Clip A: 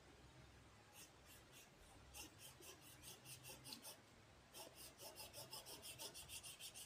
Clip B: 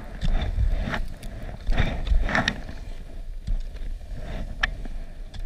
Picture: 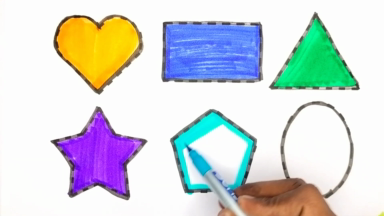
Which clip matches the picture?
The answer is A